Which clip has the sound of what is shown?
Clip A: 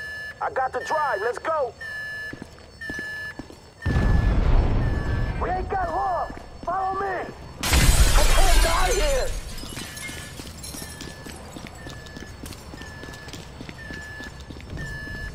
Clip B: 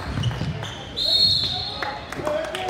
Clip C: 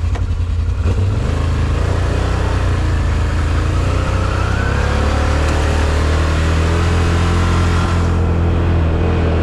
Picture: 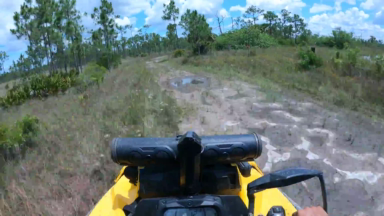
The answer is C